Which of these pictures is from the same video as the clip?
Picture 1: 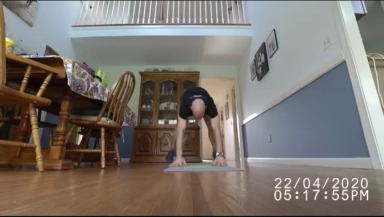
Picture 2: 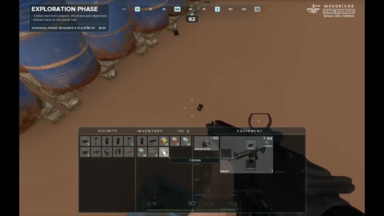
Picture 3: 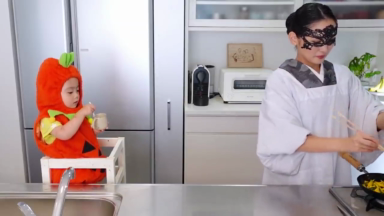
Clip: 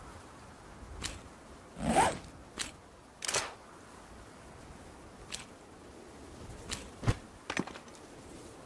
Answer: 2